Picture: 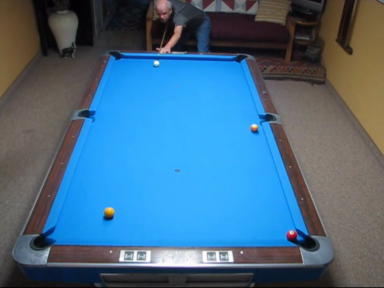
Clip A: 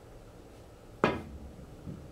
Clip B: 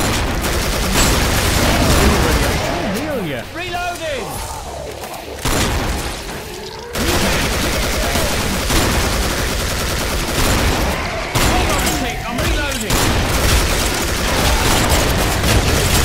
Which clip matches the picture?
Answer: A